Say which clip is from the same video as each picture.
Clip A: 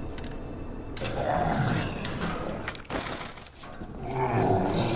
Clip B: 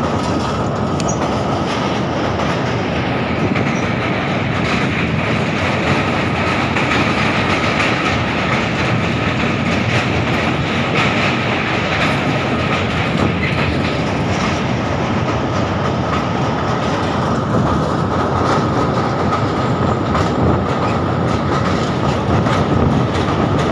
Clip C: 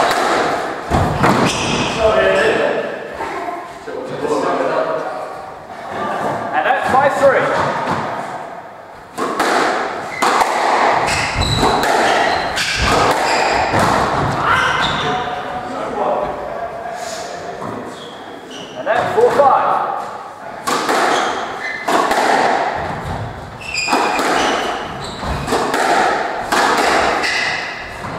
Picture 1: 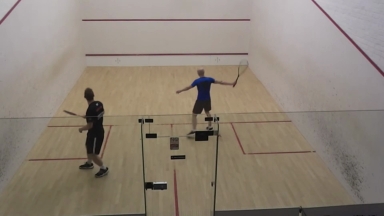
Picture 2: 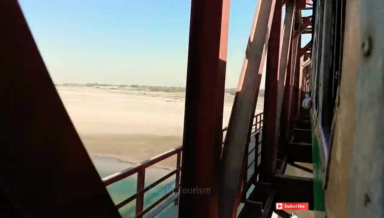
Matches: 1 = C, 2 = B